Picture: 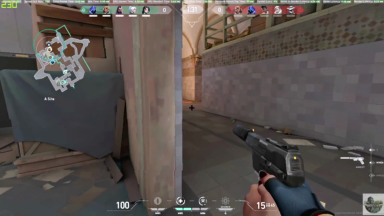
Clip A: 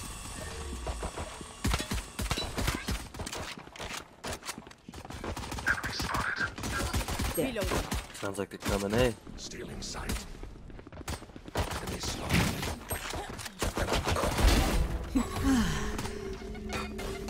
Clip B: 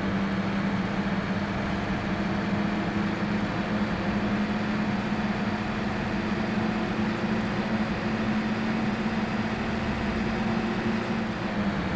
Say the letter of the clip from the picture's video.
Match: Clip A